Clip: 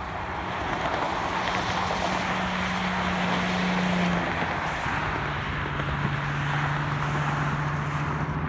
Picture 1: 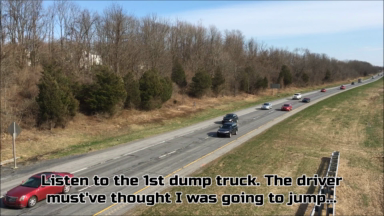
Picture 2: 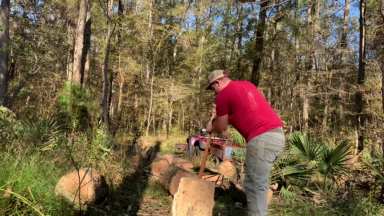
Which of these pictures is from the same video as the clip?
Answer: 1